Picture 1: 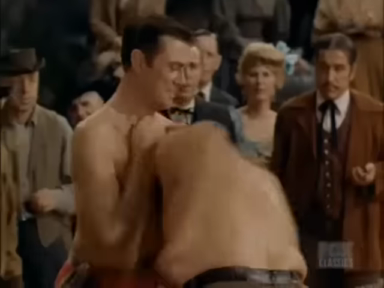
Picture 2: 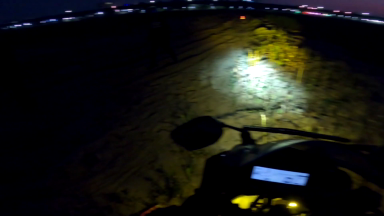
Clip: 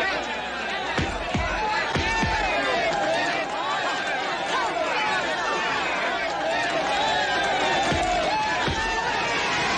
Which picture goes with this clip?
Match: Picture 1